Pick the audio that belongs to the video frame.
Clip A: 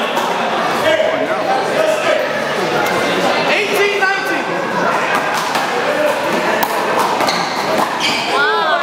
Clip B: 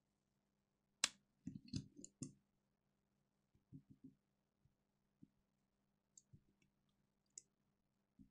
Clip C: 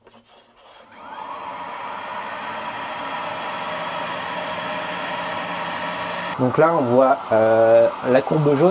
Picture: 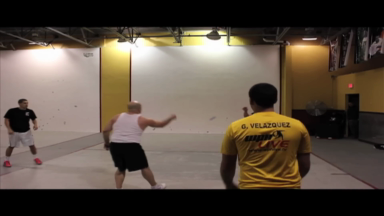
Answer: A